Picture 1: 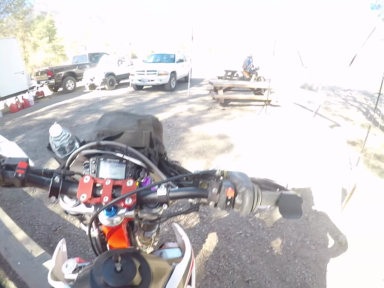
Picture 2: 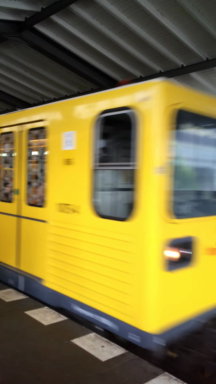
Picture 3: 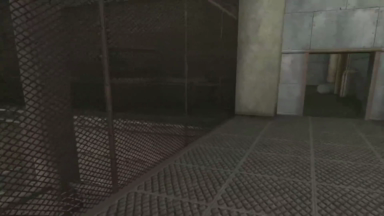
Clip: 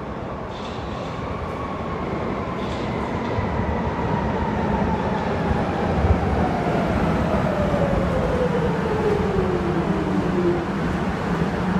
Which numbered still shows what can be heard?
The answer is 2